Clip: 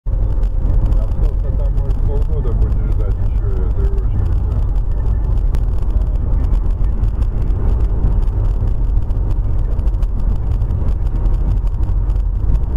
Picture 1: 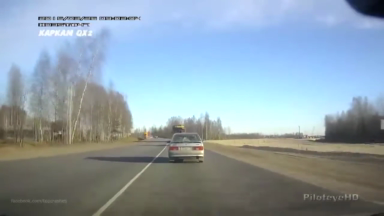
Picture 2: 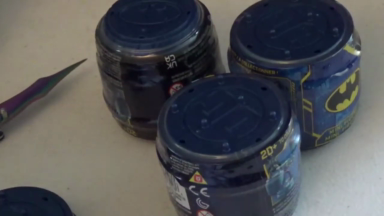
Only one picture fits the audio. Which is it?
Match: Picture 1